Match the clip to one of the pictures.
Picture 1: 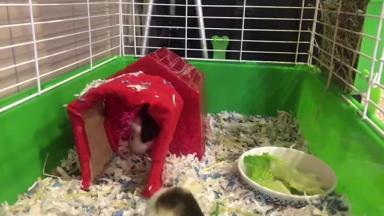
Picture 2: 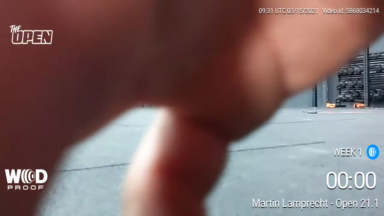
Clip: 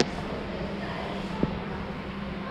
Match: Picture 2